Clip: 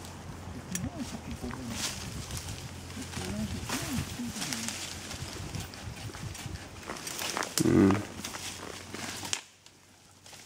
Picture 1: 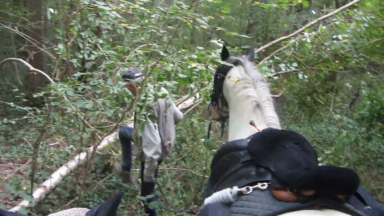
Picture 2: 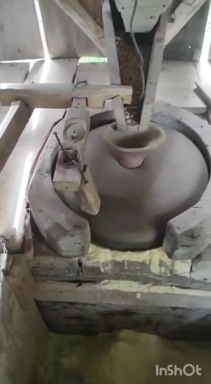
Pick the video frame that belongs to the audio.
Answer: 1